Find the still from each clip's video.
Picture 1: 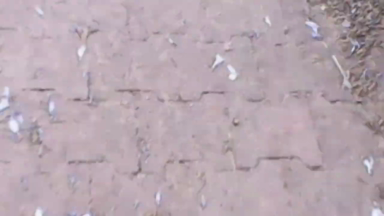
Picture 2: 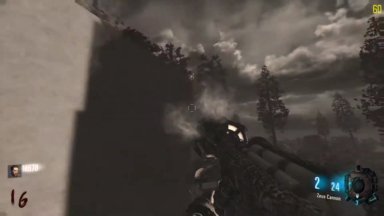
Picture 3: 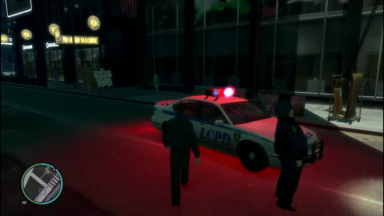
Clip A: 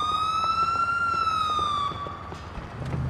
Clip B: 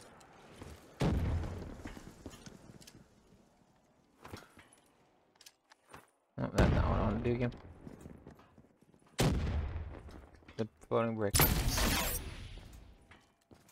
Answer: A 3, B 2